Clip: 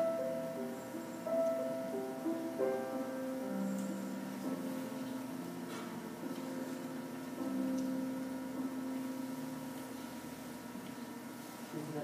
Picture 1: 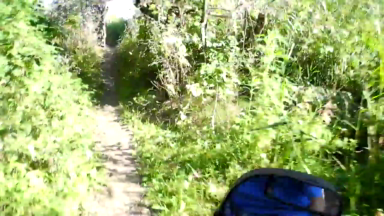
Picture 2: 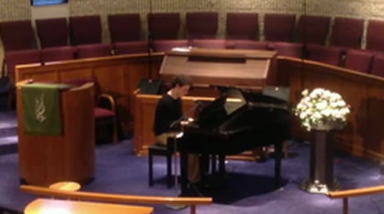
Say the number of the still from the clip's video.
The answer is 2